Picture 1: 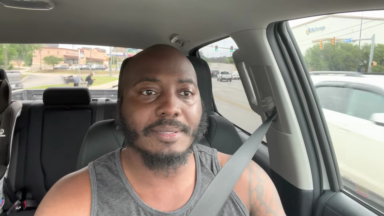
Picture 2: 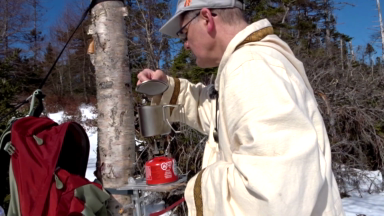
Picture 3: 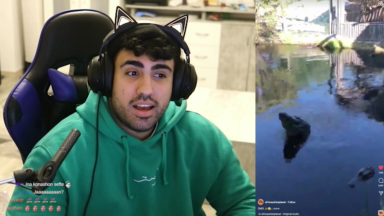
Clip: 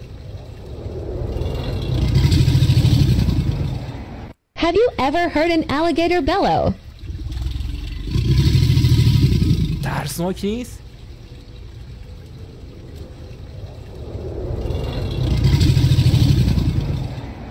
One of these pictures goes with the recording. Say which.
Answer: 3